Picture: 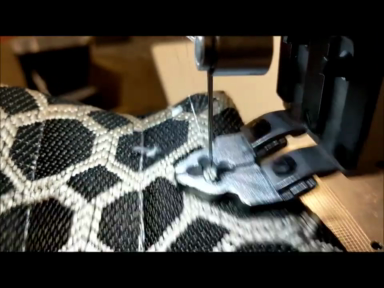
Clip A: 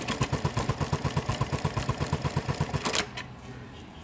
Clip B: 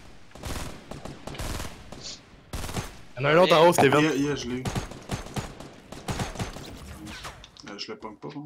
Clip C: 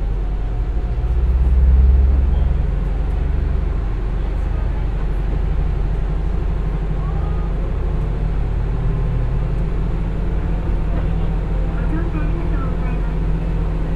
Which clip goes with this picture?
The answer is A